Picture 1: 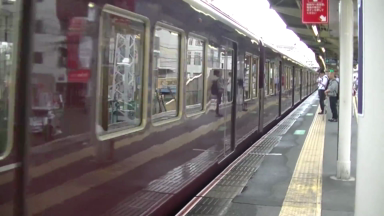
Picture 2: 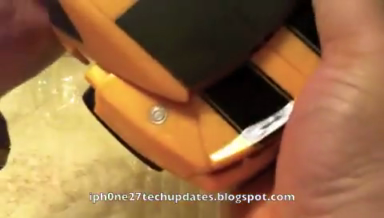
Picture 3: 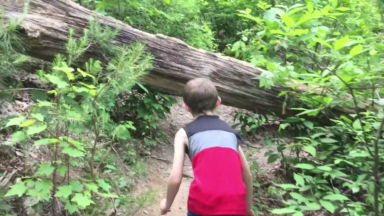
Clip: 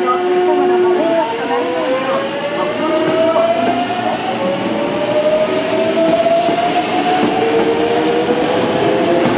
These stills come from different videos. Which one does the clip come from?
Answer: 1